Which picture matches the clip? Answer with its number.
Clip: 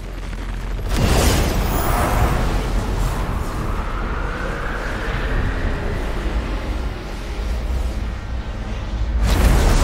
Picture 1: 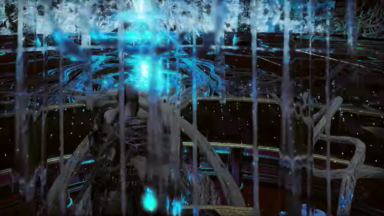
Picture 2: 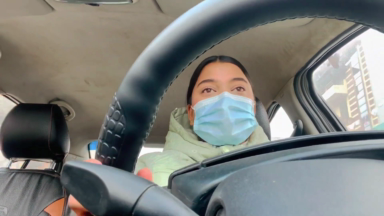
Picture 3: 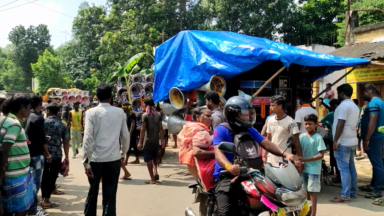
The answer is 1